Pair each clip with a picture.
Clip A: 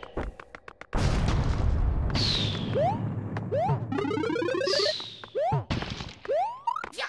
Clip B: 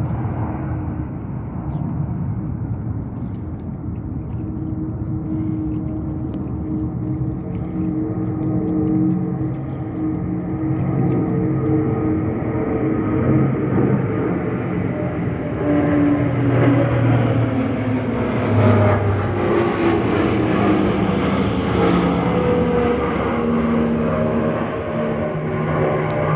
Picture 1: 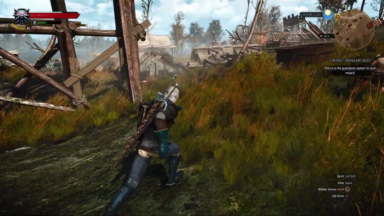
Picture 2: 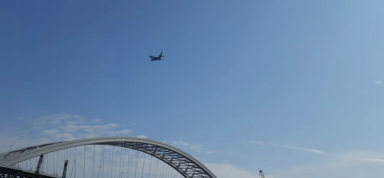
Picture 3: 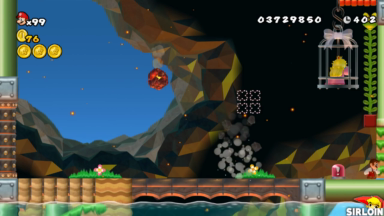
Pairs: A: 3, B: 2